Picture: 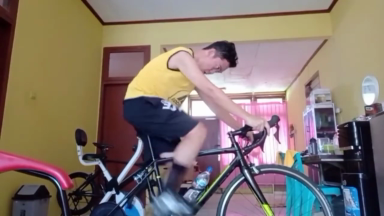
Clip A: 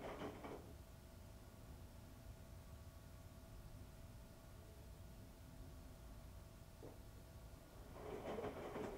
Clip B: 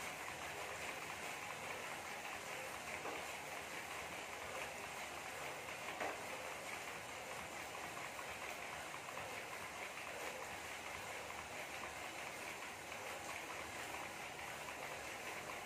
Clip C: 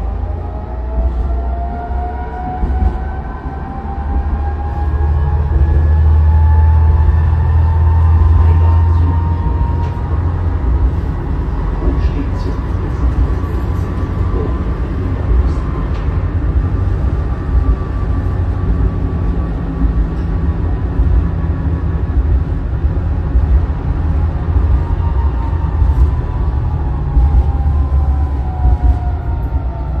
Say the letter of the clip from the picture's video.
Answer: B